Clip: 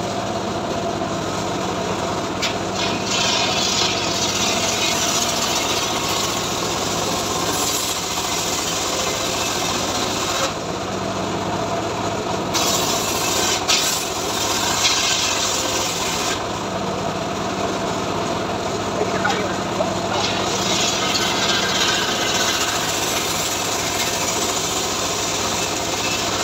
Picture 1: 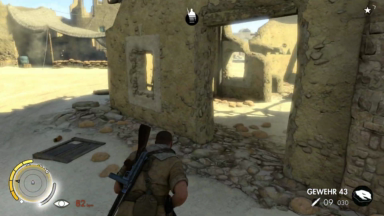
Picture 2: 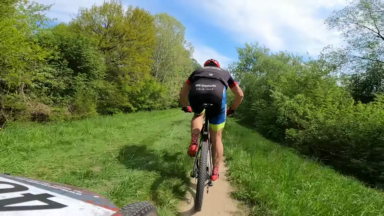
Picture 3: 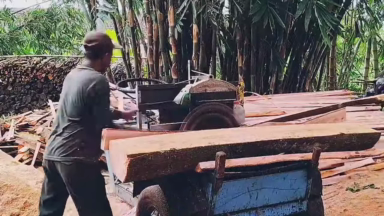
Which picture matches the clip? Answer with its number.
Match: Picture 3